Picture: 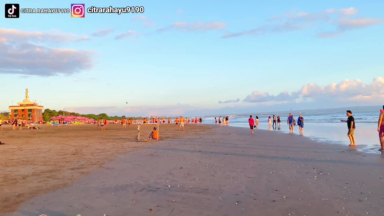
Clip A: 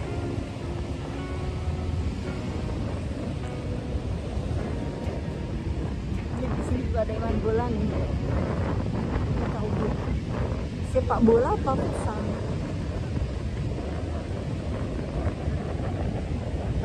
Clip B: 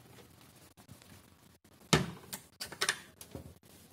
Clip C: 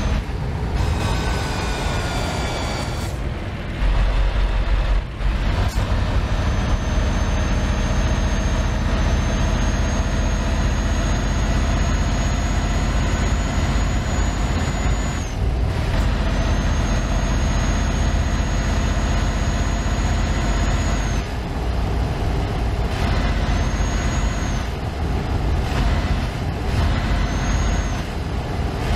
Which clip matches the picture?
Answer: A